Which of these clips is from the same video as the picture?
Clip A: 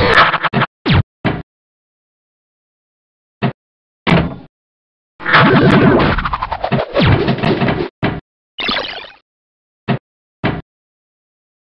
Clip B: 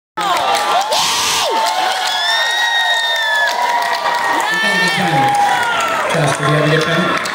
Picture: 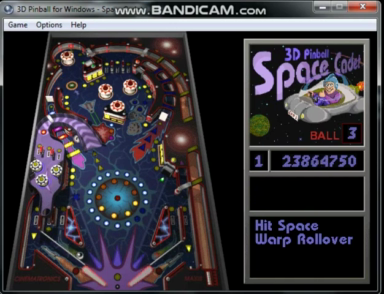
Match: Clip A